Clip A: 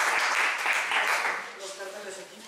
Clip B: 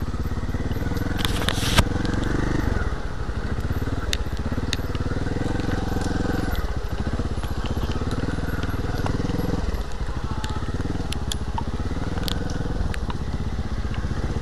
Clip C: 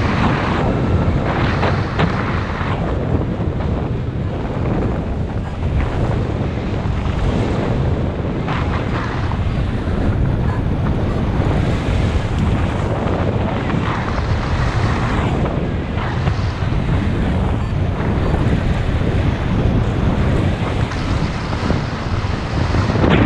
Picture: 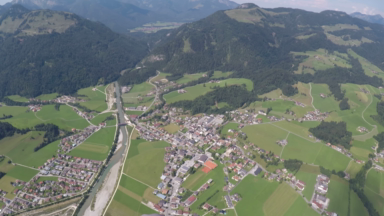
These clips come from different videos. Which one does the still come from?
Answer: C